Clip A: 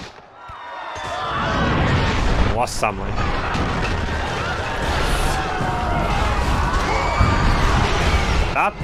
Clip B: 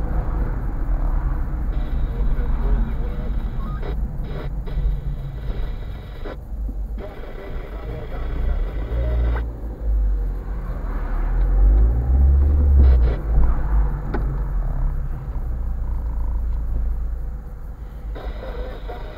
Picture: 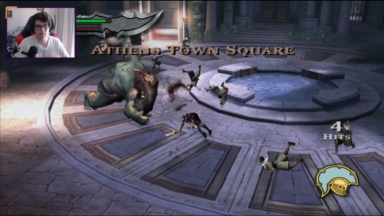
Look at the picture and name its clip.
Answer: A